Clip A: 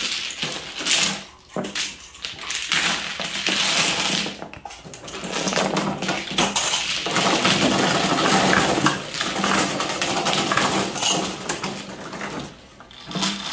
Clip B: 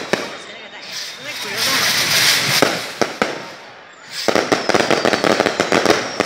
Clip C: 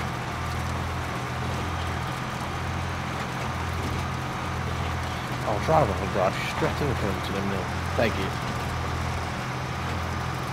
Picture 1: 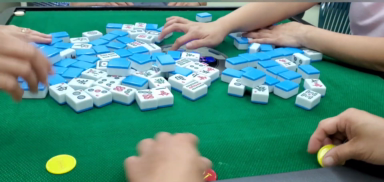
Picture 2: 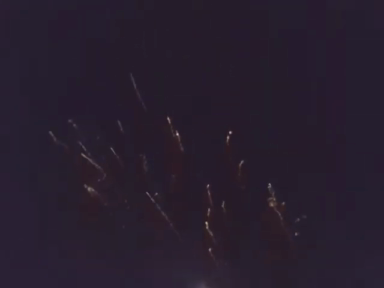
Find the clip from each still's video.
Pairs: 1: A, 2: B